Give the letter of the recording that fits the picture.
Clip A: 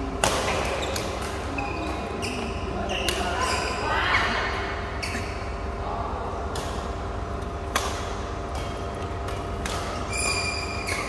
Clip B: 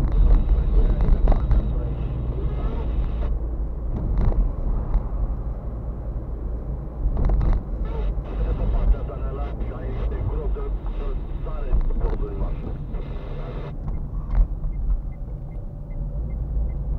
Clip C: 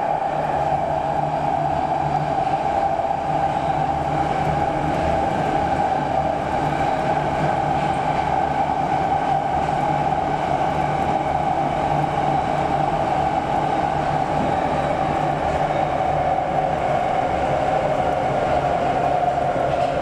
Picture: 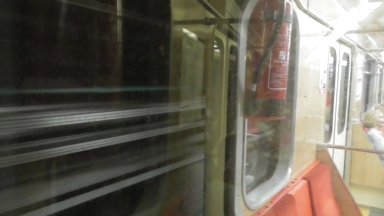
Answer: C